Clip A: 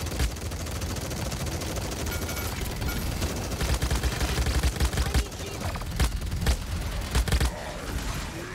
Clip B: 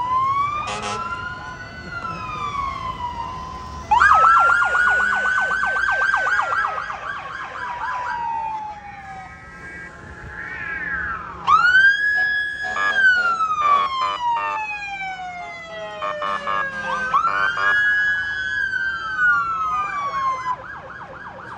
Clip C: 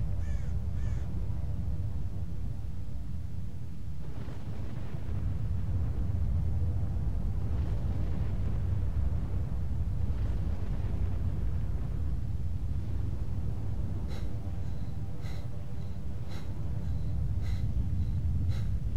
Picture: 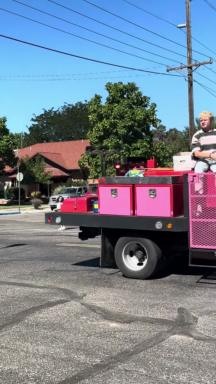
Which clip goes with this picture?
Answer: B